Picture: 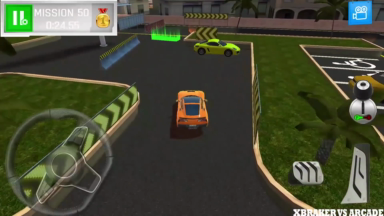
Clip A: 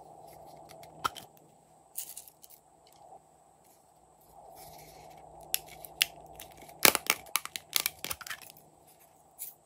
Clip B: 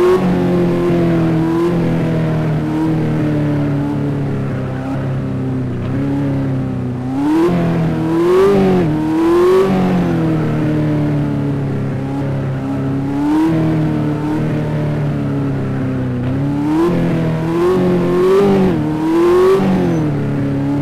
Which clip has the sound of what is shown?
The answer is B